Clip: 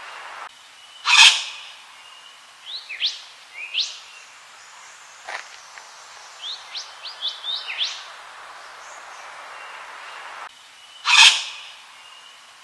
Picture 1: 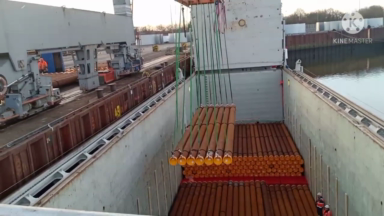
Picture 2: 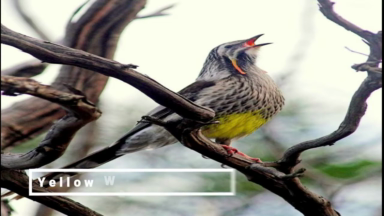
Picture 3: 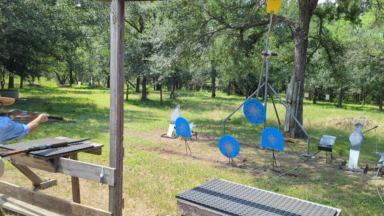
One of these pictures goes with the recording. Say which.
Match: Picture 2